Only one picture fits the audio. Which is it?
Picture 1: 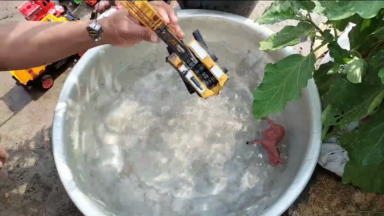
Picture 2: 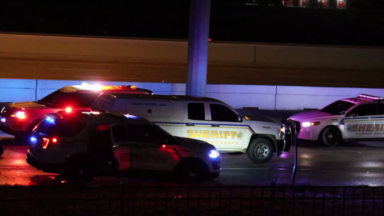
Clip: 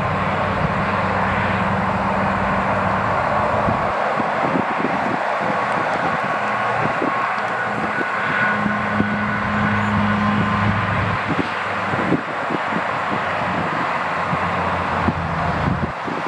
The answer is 2